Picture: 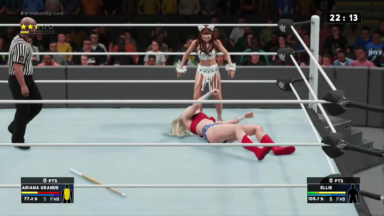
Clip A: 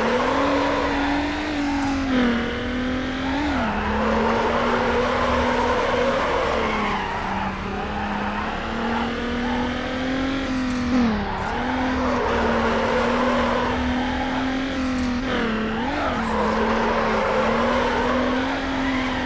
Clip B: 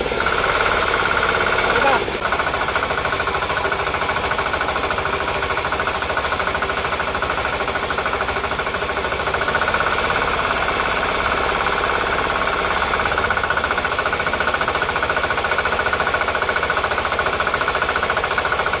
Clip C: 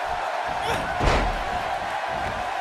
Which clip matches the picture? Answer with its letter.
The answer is C